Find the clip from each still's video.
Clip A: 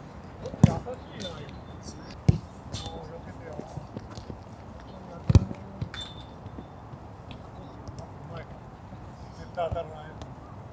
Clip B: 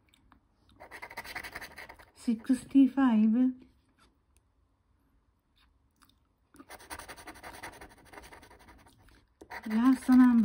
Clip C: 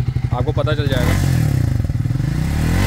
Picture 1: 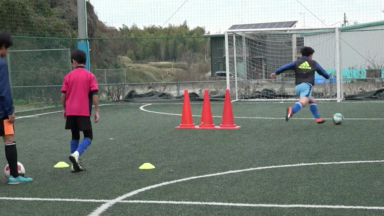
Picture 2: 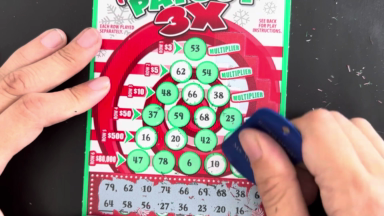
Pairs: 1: A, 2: B